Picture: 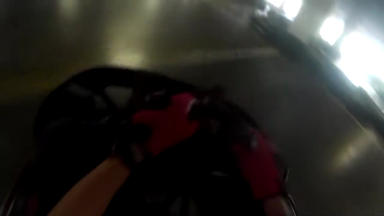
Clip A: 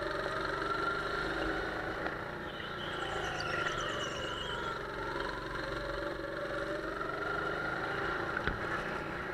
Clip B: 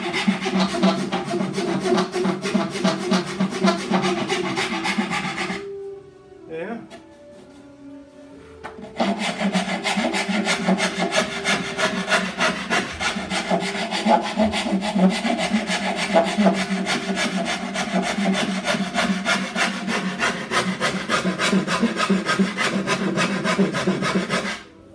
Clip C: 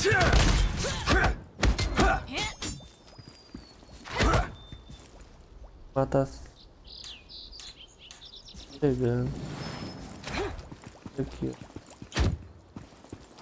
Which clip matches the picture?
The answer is A